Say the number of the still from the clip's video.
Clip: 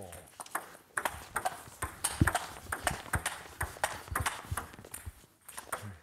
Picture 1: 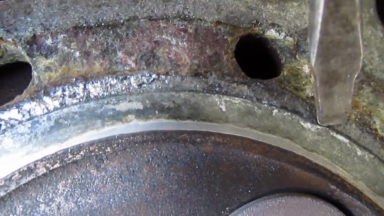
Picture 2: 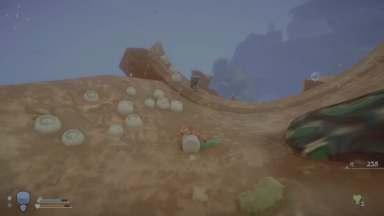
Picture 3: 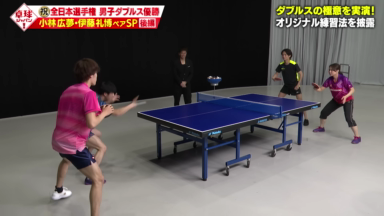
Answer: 3